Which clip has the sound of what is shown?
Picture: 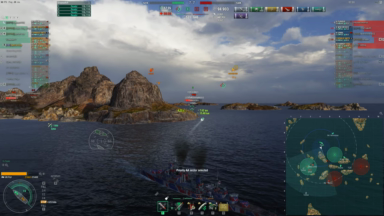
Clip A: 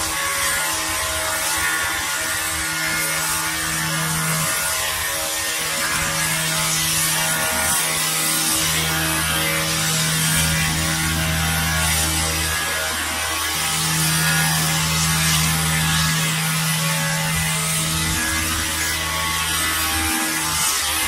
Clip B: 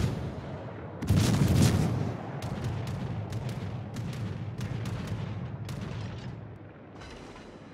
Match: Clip B